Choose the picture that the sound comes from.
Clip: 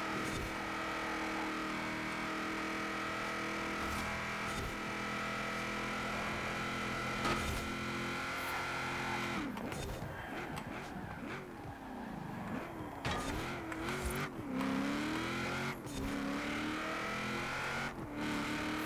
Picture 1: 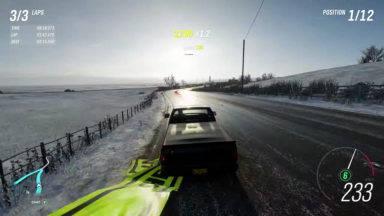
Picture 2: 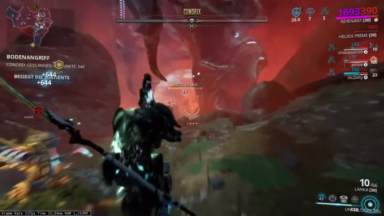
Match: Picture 1